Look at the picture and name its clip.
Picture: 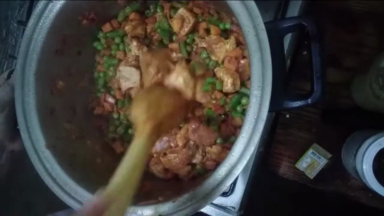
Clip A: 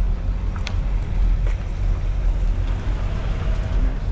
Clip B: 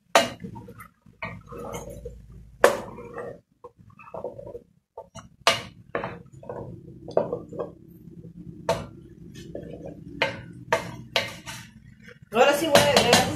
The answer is B